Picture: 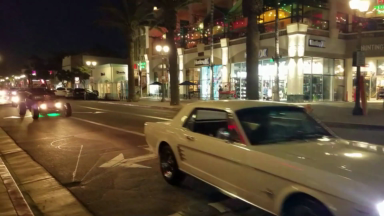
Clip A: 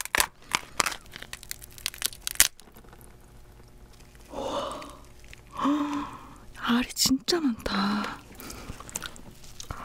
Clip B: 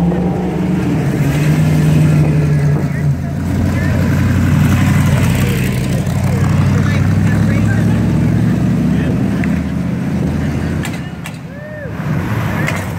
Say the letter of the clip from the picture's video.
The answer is B